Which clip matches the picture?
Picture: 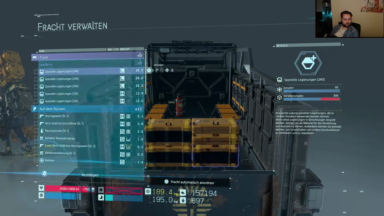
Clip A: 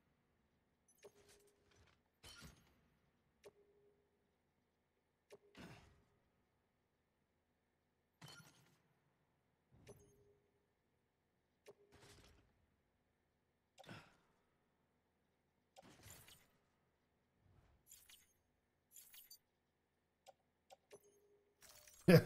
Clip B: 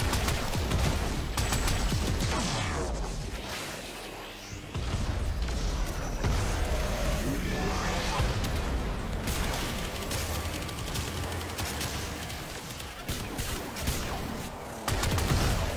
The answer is A